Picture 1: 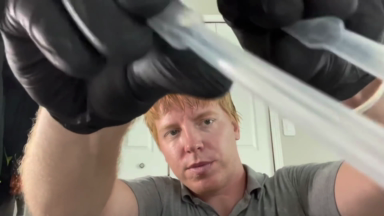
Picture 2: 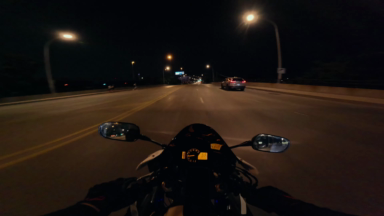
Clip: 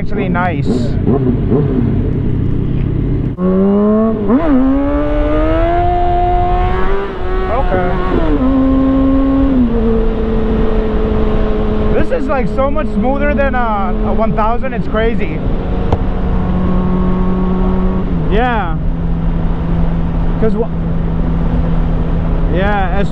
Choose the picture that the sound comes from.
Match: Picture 2